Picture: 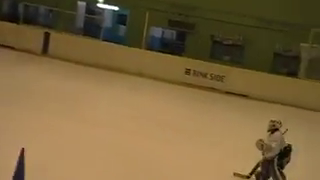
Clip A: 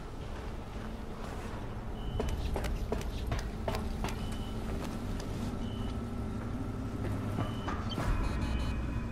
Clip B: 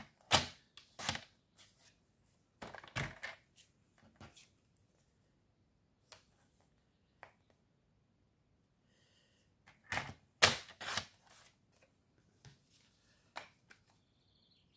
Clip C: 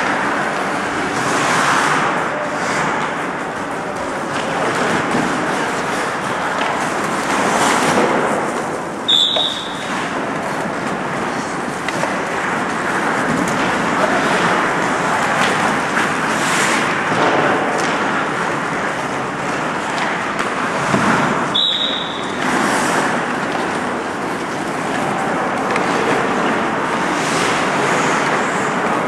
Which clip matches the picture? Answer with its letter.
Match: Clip C